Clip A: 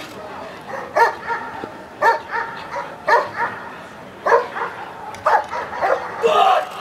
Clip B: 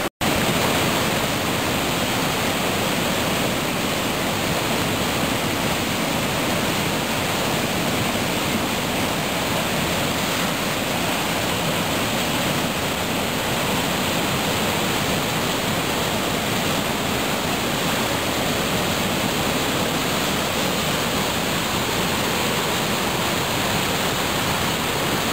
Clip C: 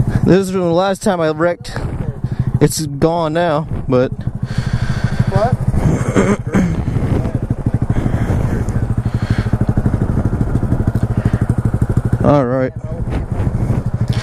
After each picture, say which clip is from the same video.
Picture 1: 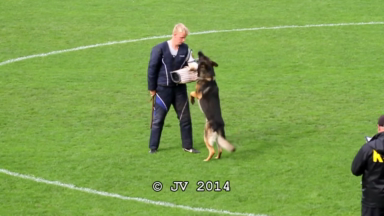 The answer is A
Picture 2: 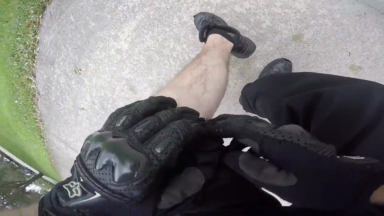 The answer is C